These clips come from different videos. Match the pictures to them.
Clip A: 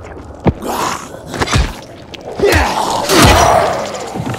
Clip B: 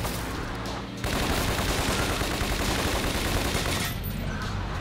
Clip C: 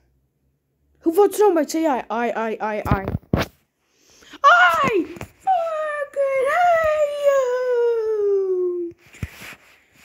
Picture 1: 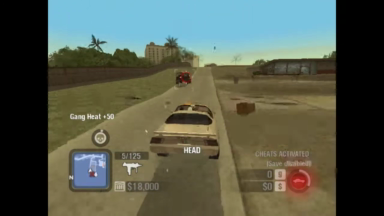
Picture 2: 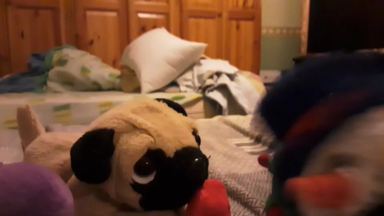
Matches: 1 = B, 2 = C